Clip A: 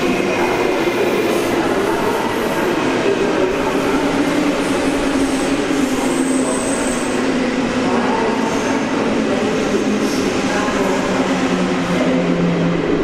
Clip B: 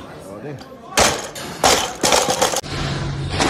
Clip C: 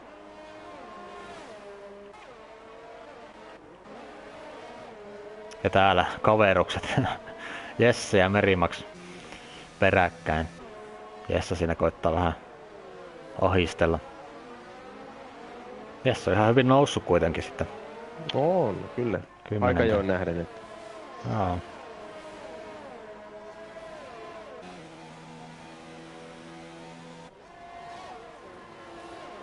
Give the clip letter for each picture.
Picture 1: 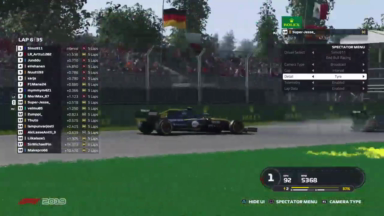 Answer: C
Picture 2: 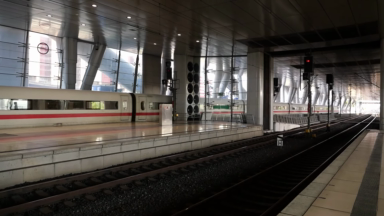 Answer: A